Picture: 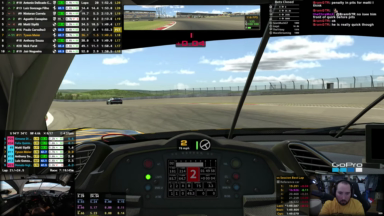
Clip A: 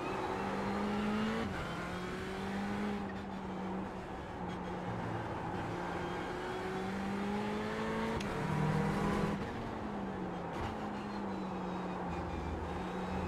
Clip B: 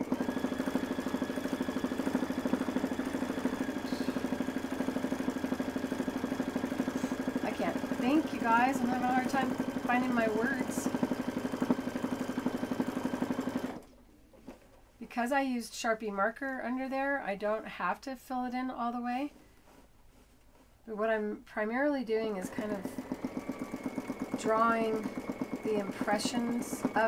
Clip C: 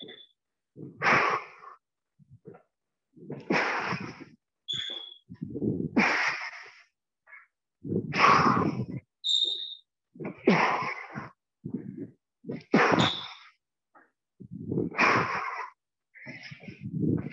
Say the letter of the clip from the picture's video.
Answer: A